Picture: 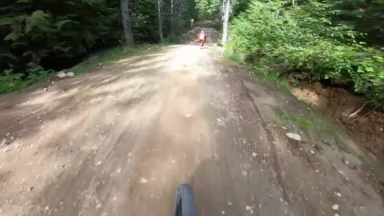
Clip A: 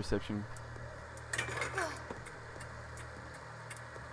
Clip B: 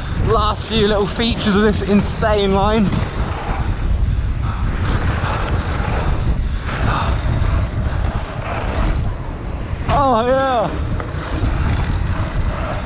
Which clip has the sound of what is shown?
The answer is B